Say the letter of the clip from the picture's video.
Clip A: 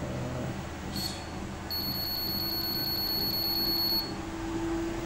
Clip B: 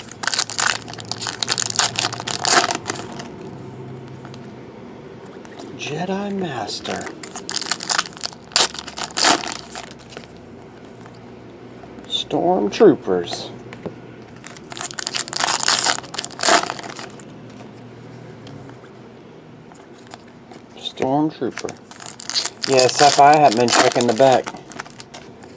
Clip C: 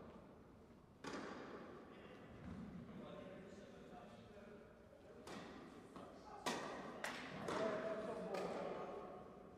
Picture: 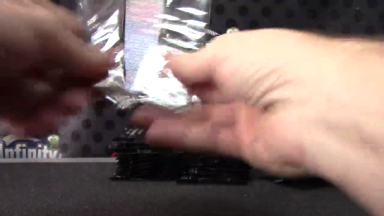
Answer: B